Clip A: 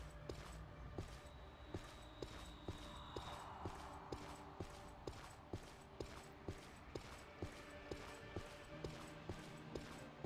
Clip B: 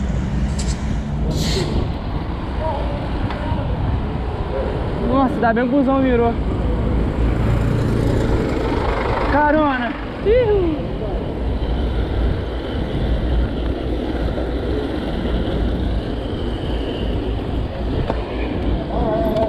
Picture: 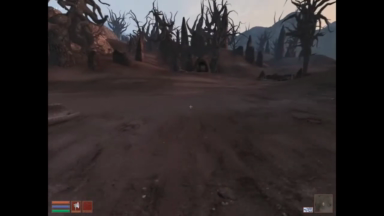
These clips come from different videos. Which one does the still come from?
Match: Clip A